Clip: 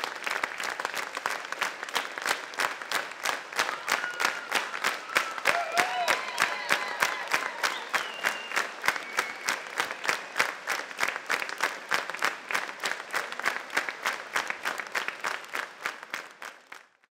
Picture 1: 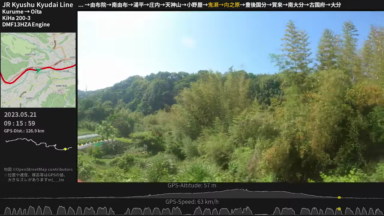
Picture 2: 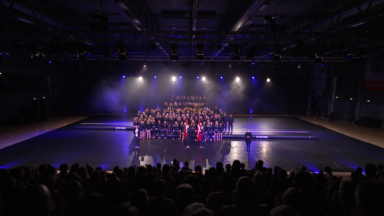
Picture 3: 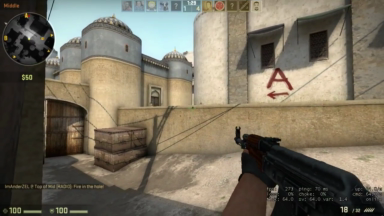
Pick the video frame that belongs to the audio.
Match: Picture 2